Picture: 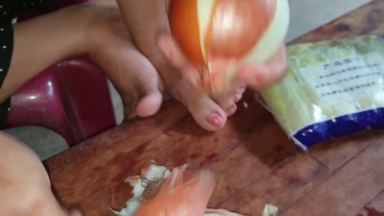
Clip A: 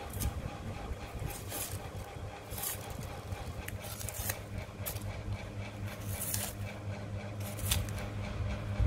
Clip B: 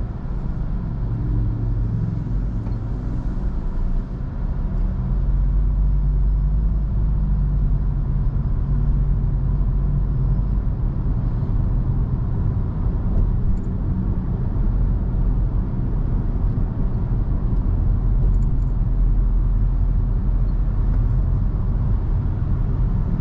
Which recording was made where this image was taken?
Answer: A